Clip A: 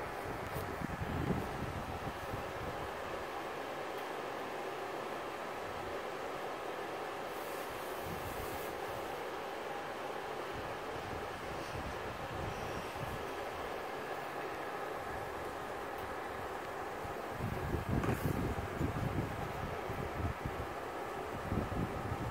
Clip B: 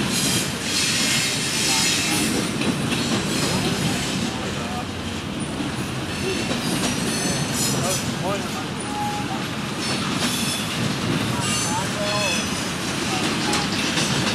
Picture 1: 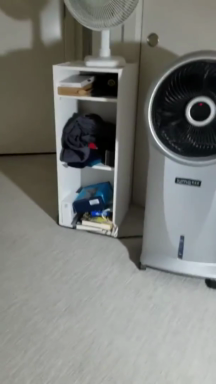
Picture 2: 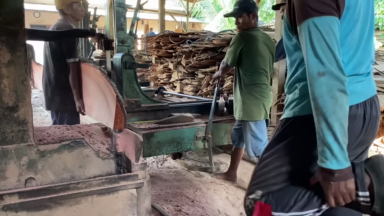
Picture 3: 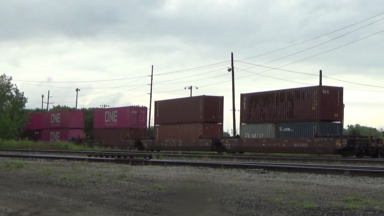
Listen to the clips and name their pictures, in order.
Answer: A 1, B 3